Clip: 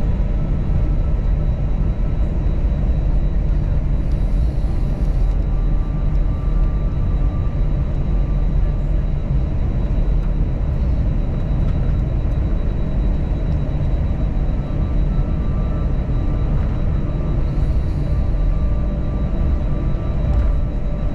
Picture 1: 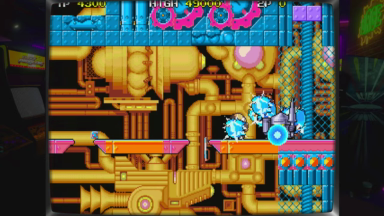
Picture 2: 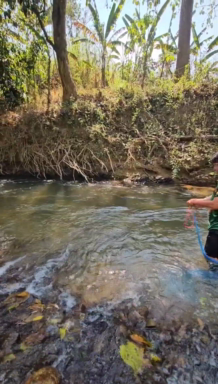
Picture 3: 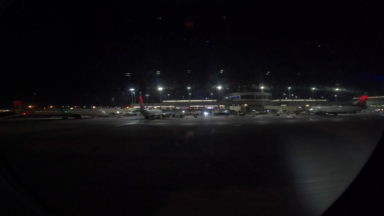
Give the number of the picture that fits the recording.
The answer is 3